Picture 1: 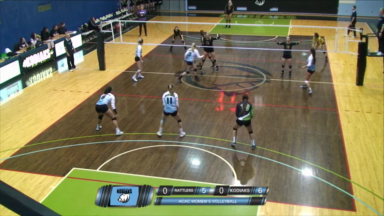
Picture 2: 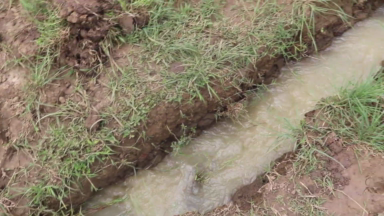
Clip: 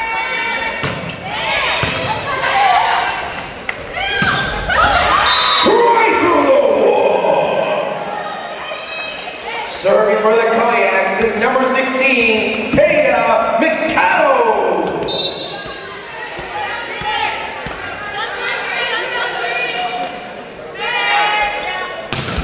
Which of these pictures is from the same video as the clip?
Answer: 1